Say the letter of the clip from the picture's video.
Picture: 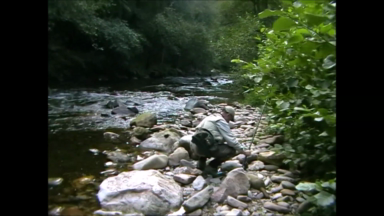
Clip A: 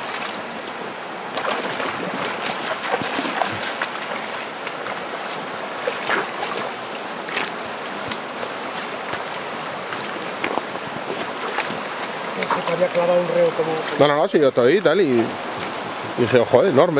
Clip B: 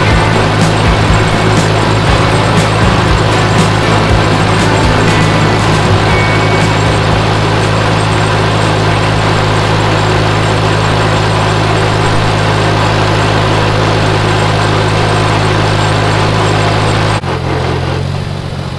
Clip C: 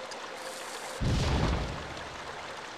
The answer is A